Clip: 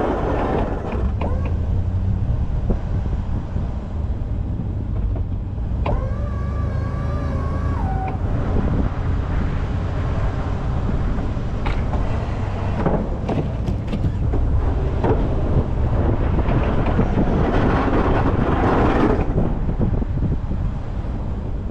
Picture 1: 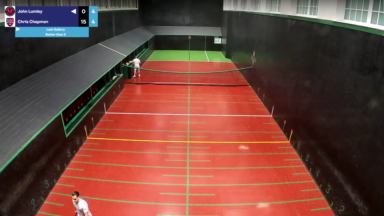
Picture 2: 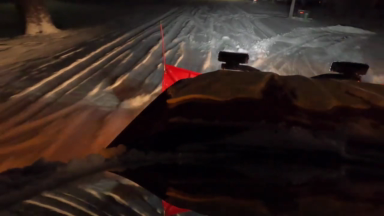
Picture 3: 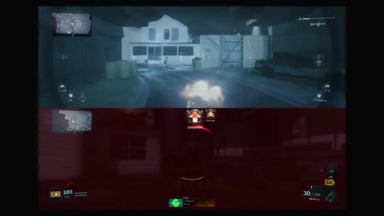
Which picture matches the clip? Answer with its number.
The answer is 2